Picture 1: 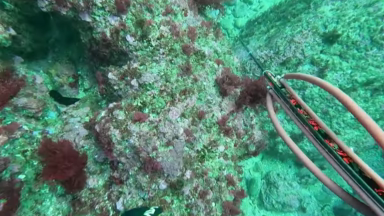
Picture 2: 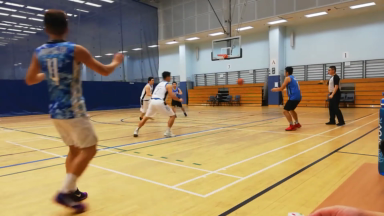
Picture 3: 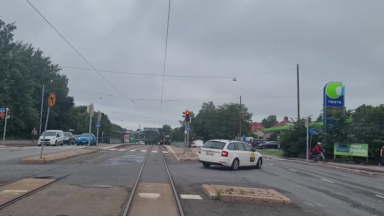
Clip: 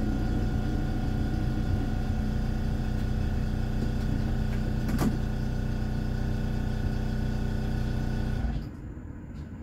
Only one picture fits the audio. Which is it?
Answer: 3